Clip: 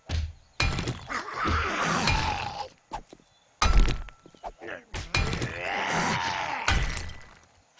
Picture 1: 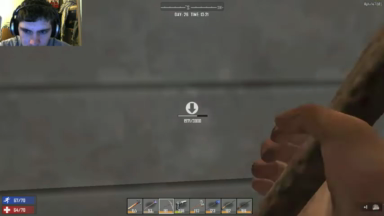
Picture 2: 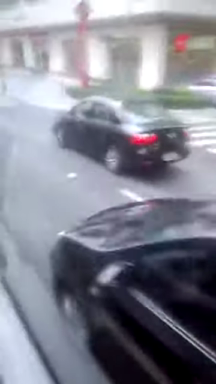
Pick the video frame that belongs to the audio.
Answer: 1